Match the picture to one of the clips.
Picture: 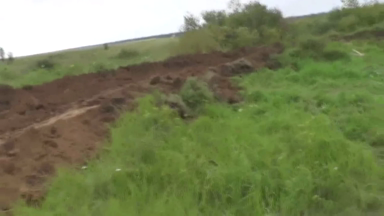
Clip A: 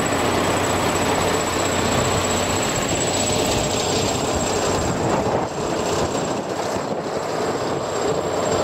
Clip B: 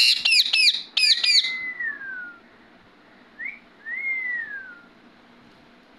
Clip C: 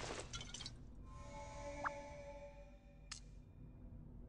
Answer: A